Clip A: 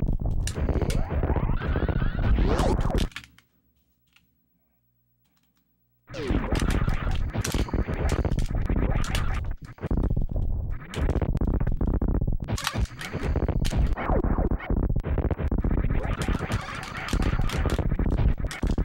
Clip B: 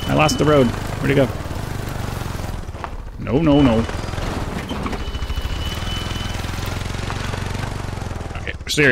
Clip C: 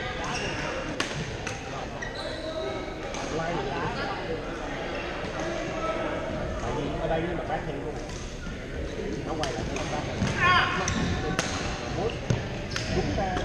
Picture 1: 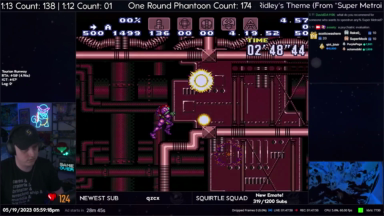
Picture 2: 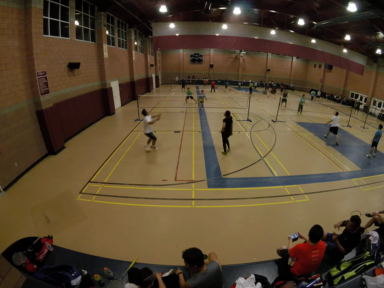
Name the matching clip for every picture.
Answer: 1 A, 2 C